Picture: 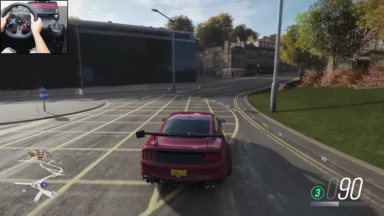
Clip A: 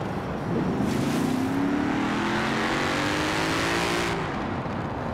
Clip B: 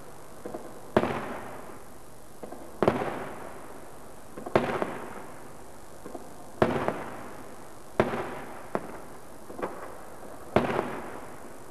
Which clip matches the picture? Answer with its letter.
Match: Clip A